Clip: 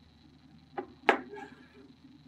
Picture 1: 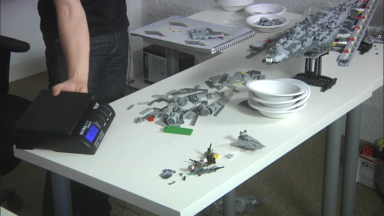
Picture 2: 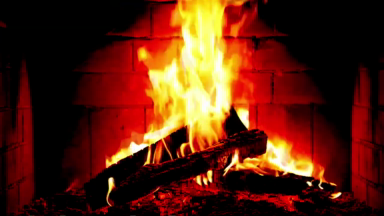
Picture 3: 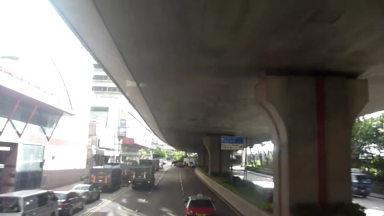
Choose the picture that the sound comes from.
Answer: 1